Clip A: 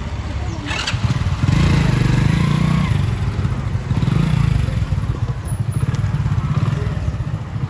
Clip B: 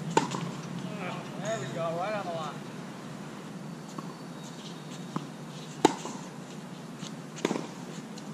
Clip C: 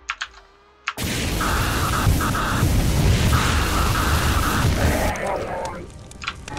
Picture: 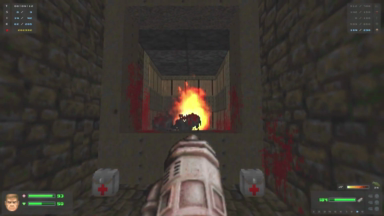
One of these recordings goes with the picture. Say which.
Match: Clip C